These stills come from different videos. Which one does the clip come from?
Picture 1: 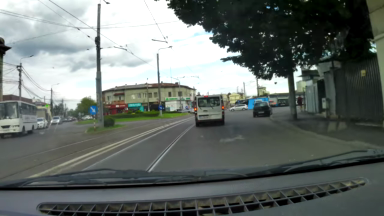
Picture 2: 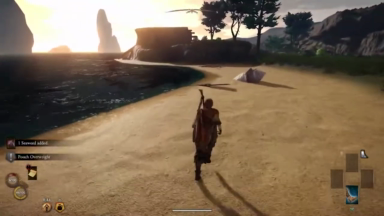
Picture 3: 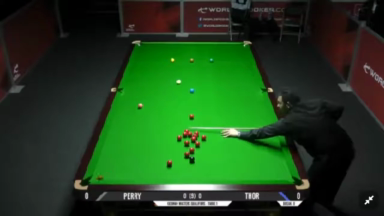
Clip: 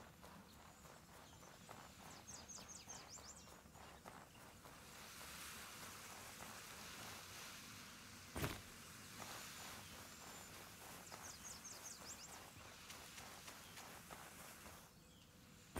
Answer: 2